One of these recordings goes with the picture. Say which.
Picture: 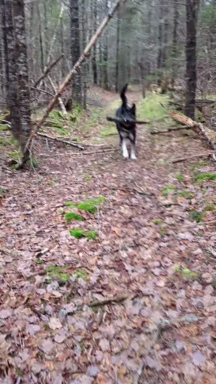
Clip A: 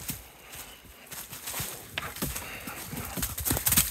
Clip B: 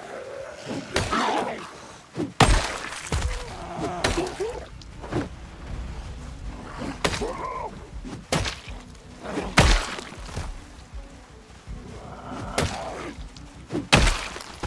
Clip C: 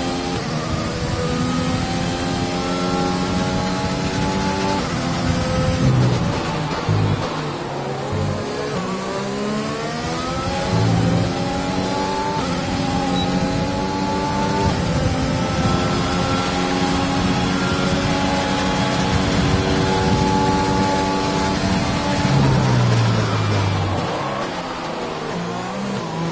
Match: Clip A